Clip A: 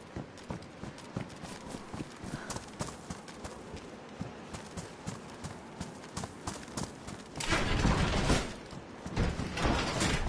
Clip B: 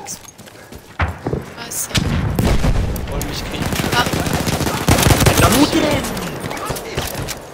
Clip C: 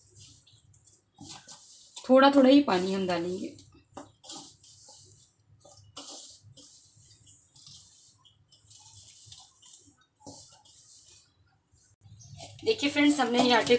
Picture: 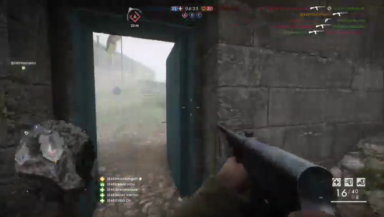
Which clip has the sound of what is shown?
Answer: B